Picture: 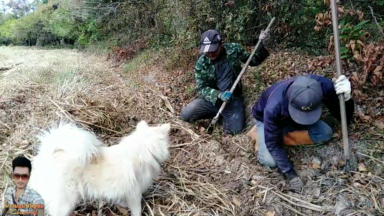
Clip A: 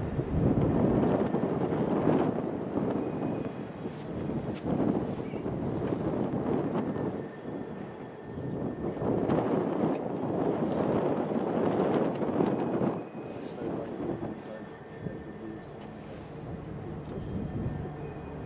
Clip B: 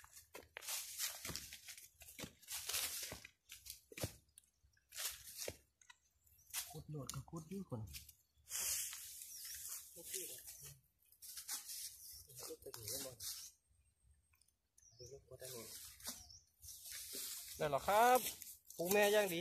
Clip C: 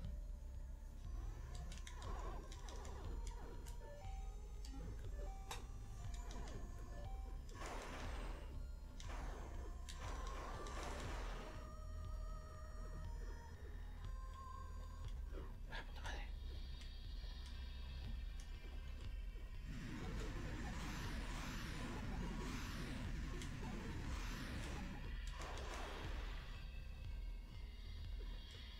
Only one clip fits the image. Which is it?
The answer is B